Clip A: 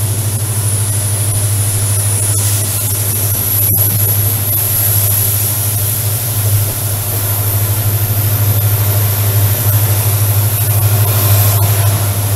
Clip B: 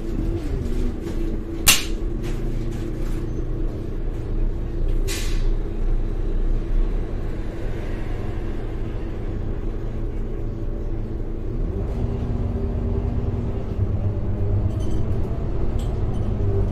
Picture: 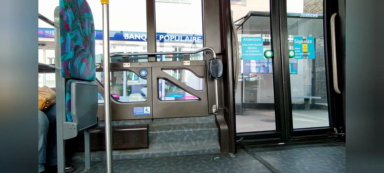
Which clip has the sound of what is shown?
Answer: B